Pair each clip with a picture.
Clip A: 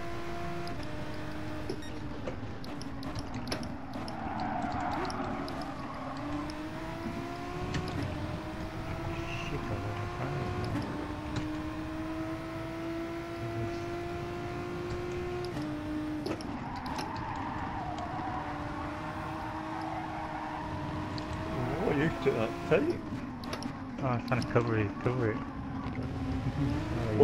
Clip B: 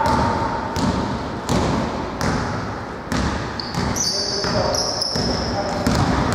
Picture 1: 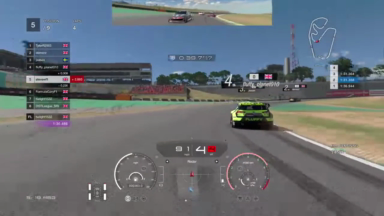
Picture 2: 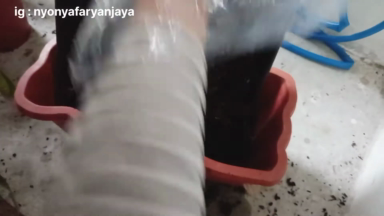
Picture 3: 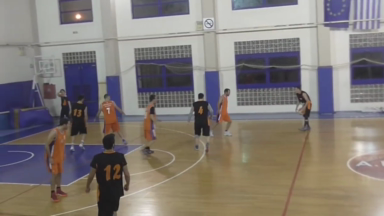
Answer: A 1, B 3